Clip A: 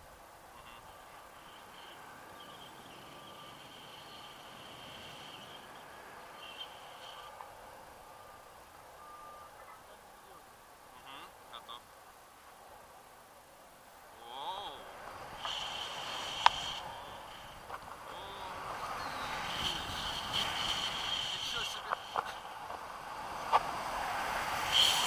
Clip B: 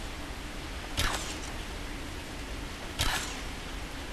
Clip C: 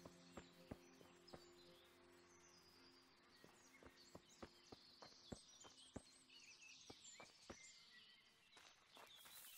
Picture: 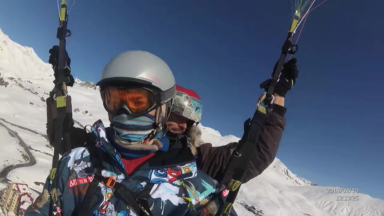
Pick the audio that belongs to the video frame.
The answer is A